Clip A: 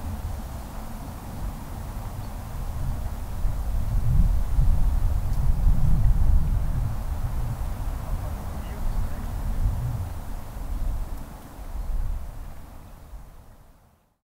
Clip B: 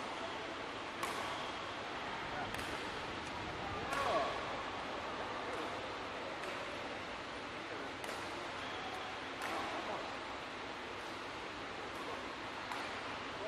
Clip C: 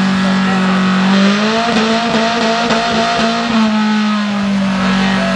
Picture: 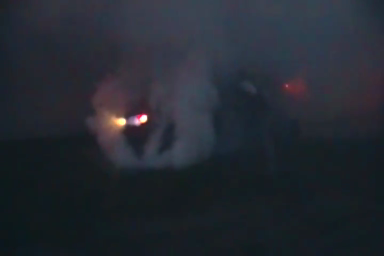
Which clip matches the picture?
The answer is C